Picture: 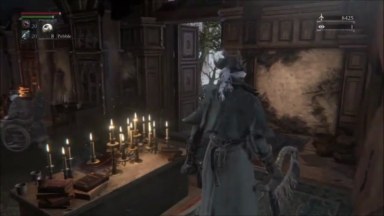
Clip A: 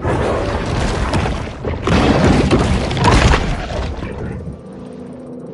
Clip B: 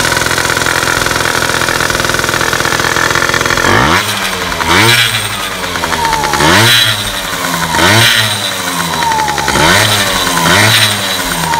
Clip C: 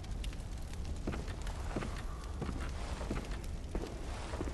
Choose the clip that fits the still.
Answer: C